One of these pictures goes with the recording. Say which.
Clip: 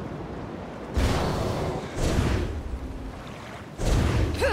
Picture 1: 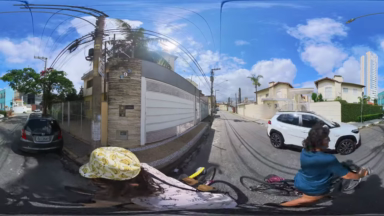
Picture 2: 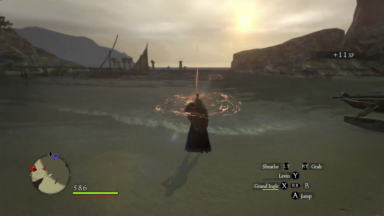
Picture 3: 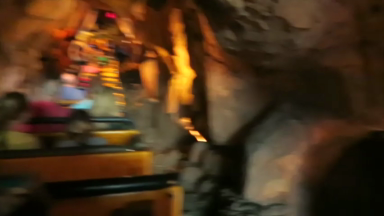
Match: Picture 2